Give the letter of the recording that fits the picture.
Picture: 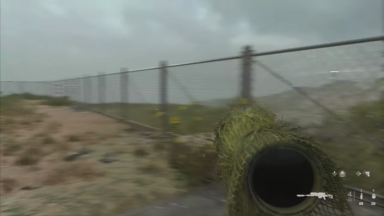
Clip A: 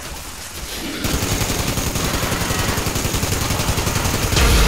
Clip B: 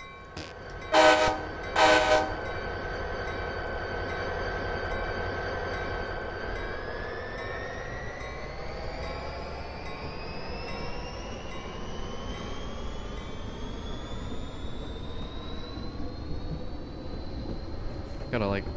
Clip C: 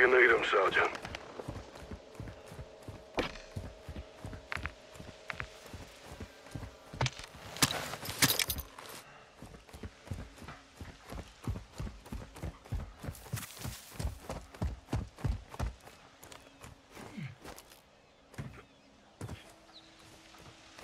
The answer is C